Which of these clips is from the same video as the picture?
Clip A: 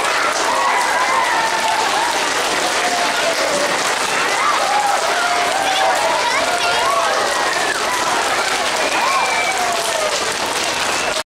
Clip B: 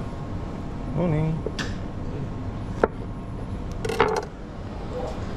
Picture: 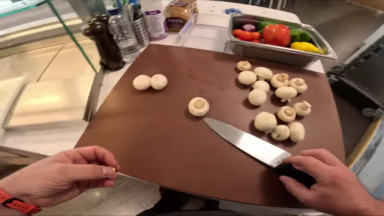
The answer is B